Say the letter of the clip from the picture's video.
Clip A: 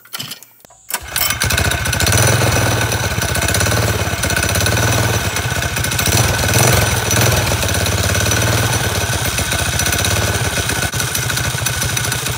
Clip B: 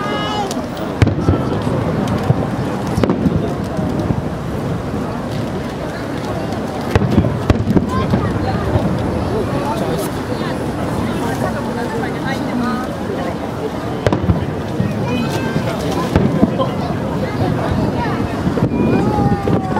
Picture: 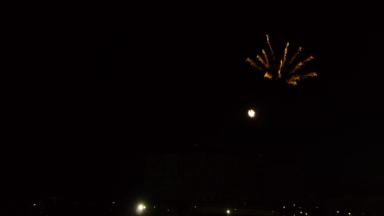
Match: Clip B